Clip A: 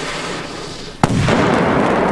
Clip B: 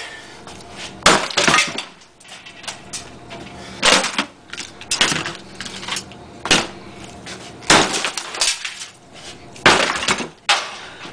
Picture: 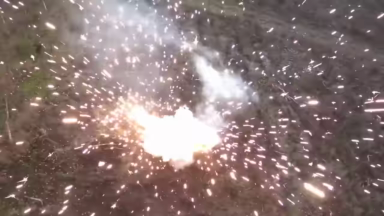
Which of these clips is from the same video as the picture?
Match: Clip A